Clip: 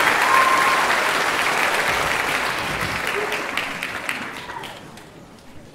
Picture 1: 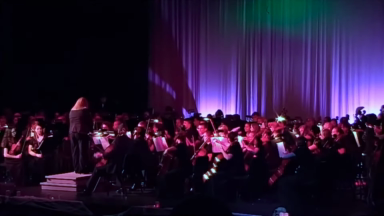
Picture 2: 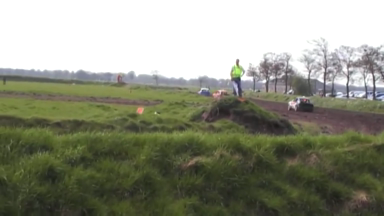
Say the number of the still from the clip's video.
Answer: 1